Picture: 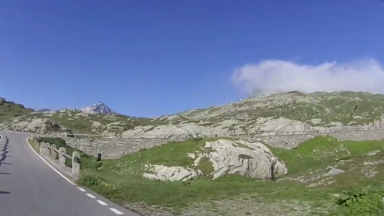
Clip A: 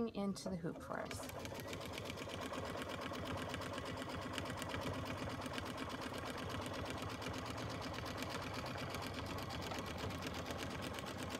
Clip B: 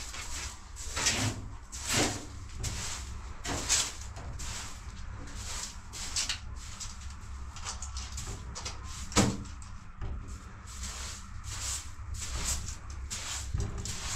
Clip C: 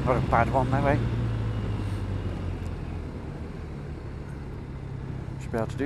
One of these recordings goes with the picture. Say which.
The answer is C